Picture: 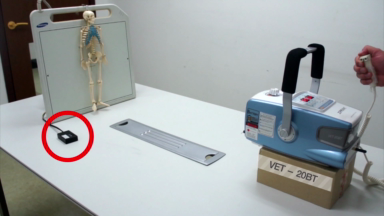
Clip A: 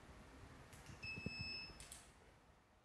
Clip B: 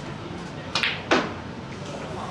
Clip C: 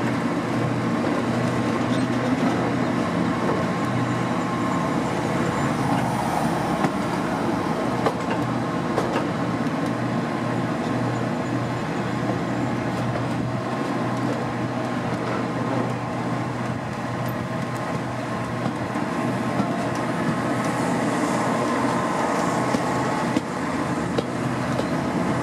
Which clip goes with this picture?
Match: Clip A